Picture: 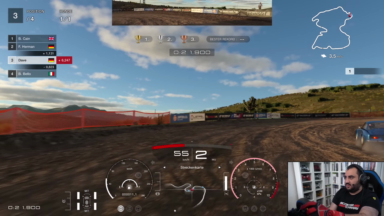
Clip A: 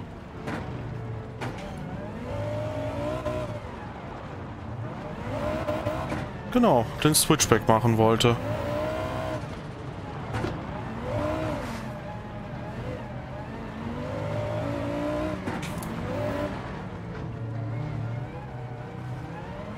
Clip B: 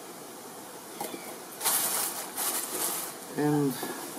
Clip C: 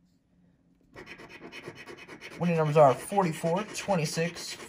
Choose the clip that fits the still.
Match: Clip A